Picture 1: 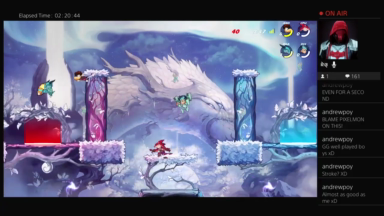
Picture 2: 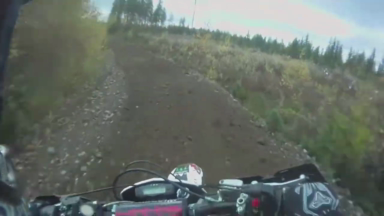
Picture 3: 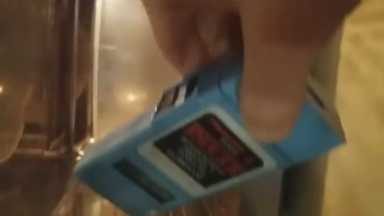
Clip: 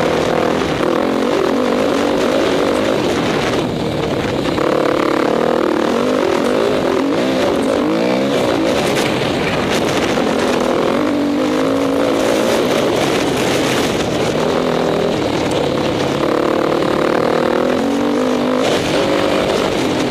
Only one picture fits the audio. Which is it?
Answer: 2